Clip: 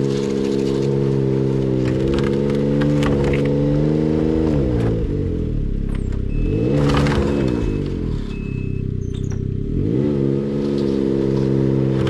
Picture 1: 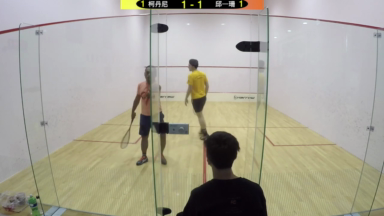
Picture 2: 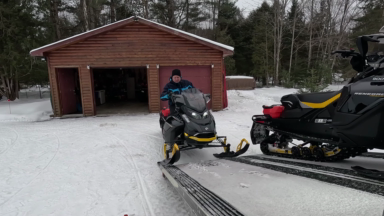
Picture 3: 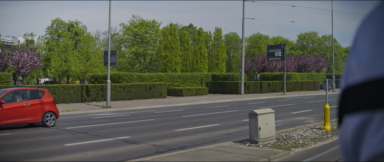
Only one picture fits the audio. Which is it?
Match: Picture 2